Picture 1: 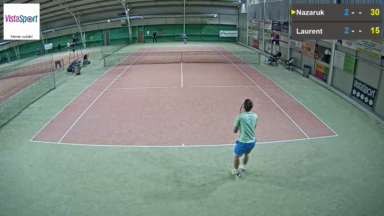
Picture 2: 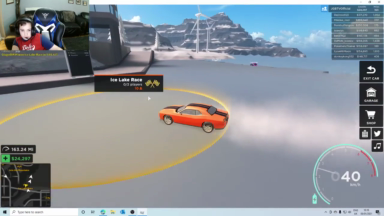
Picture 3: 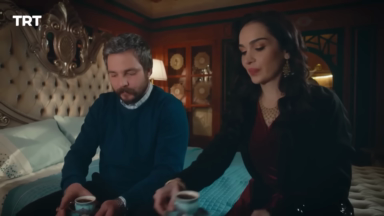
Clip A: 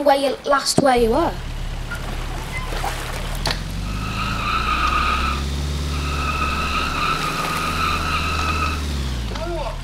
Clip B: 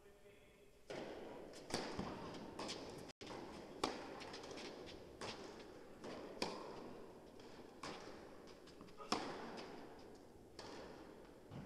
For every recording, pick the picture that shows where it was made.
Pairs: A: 2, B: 1